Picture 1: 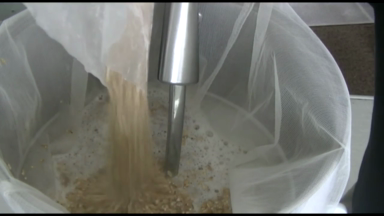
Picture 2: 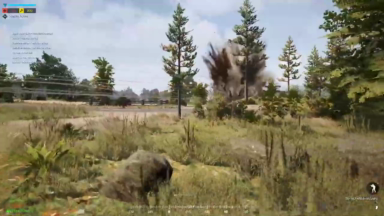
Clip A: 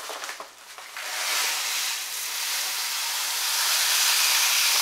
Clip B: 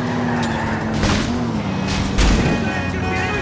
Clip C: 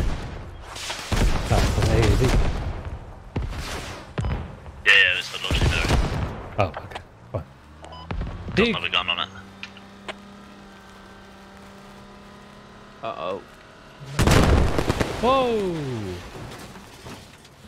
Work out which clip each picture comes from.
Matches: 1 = A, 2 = C